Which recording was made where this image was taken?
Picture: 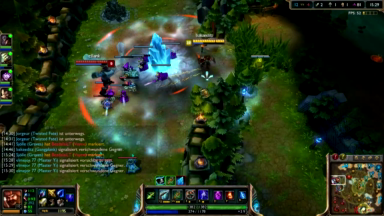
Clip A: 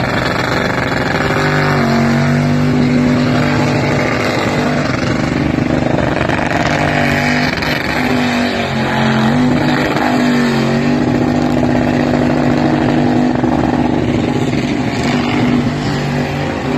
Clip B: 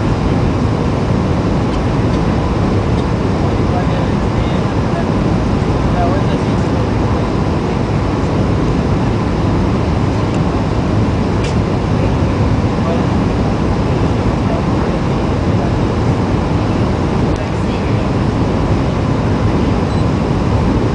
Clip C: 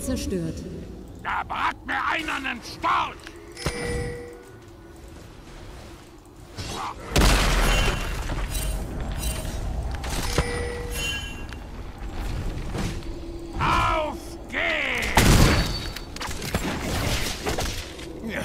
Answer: C